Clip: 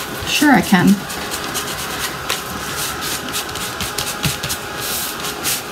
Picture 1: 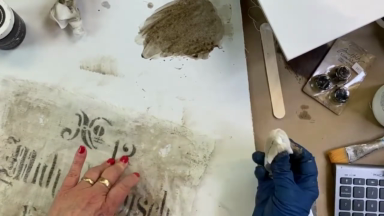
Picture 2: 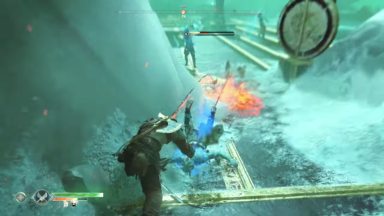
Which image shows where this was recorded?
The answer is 1